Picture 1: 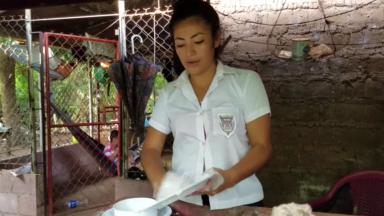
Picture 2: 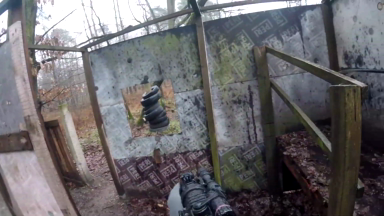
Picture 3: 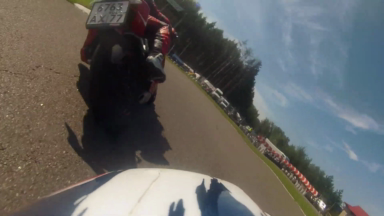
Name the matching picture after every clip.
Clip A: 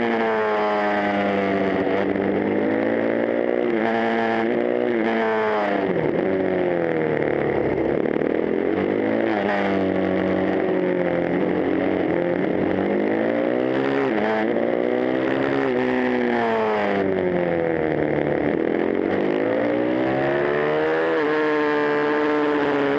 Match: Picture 3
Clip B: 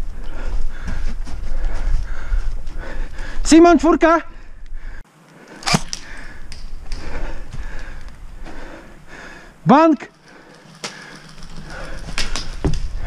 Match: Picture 2